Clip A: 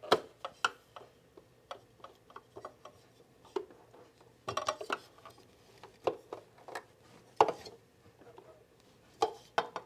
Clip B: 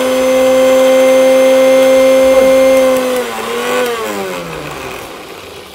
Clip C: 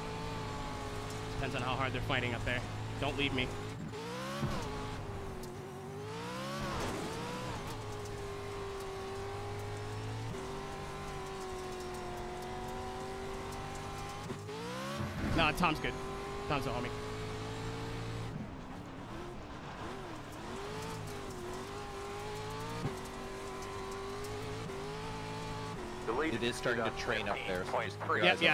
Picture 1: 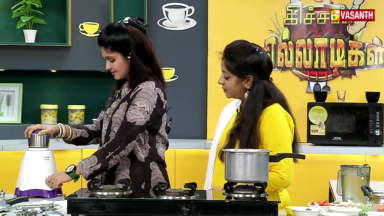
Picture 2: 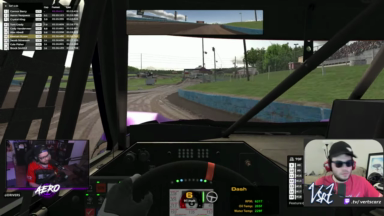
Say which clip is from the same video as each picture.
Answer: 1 B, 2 C